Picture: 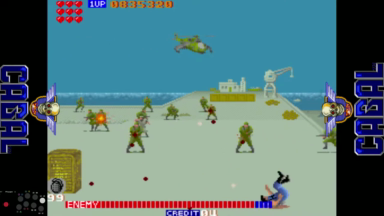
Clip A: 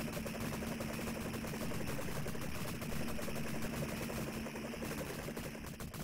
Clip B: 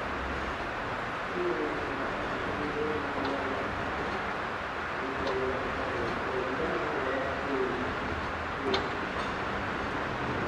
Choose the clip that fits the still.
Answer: A